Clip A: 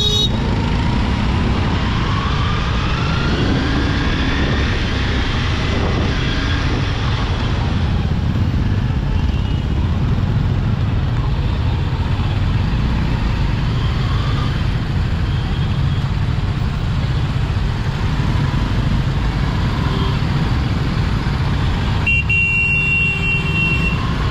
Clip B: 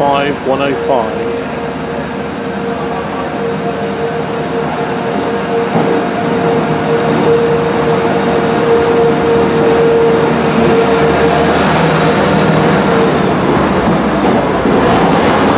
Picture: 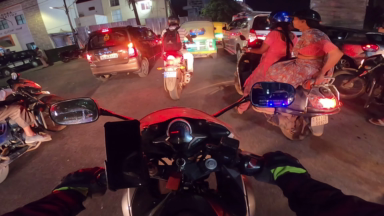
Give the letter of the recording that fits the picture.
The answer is A